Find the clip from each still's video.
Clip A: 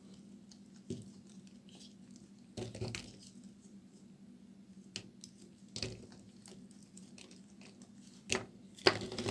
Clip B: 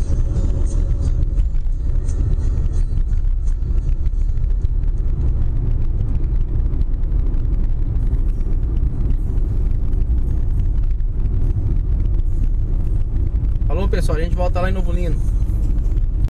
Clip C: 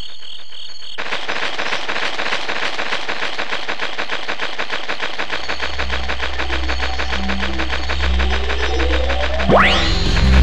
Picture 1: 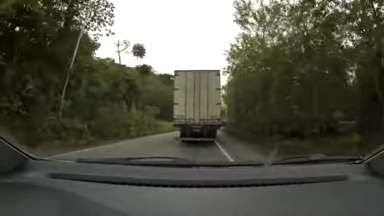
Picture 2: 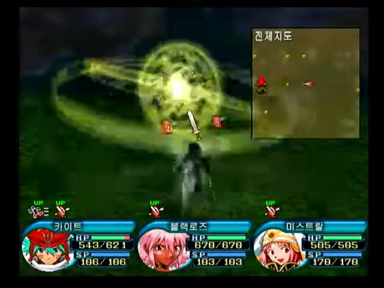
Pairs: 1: B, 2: C